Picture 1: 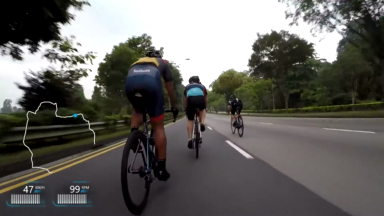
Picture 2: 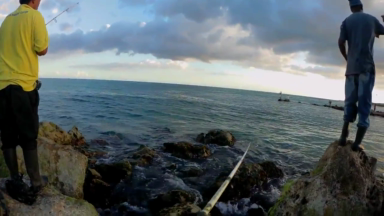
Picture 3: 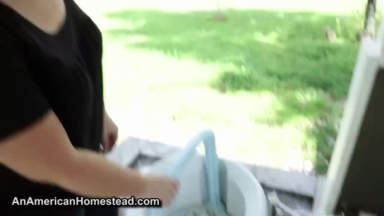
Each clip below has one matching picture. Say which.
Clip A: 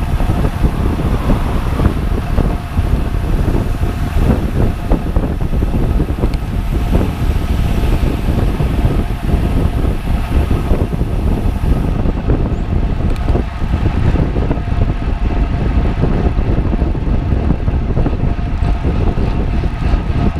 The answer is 1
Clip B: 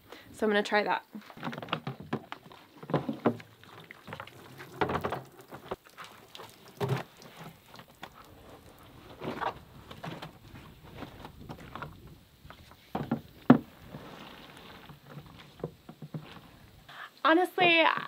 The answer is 3